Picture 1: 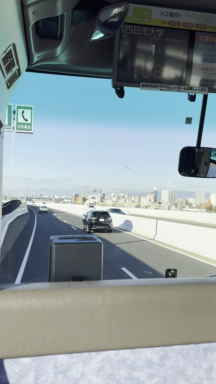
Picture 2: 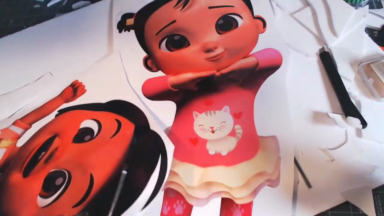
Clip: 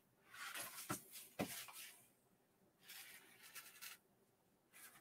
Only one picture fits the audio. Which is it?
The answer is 2